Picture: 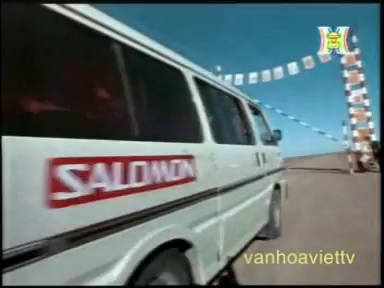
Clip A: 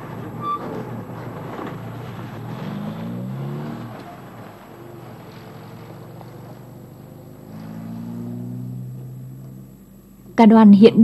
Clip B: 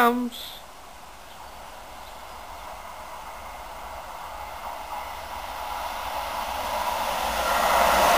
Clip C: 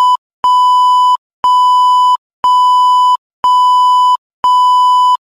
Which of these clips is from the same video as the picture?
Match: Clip A